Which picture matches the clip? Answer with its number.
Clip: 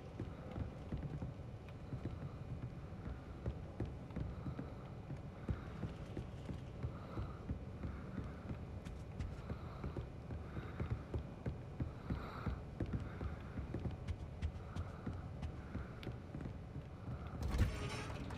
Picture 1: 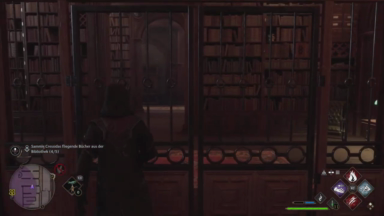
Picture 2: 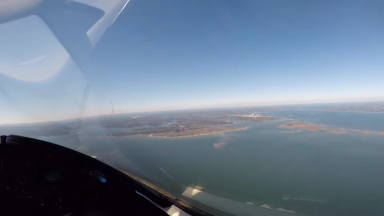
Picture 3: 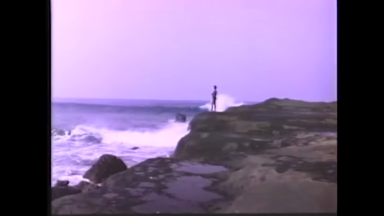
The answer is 1